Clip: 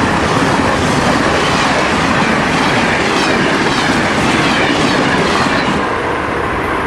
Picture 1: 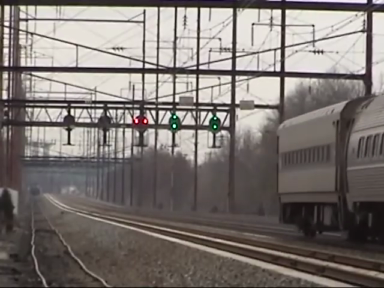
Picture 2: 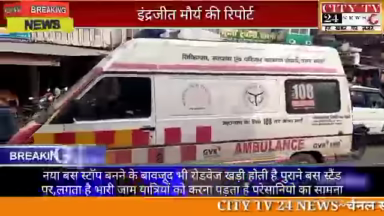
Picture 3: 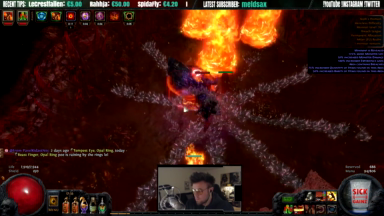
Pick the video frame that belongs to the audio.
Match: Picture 1